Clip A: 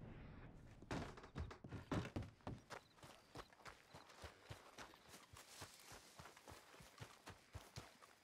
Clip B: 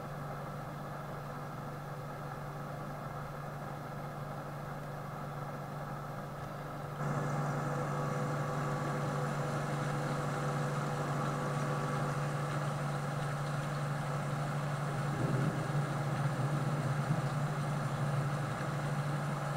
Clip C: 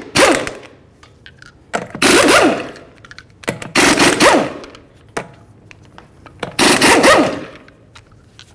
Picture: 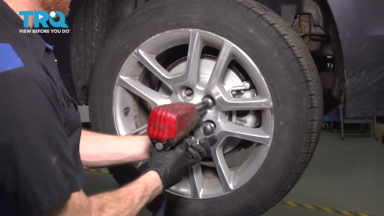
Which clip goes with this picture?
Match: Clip C